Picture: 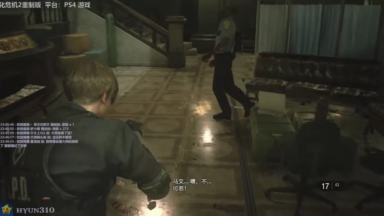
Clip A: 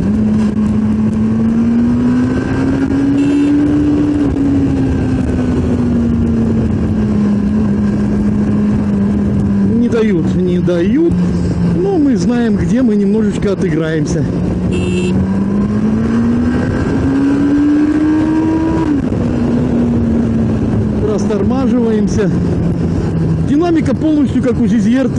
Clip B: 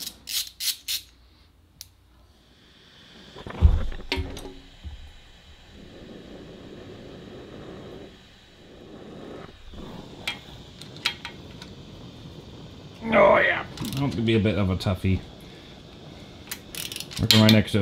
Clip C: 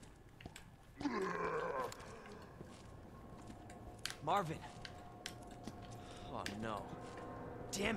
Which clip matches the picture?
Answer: C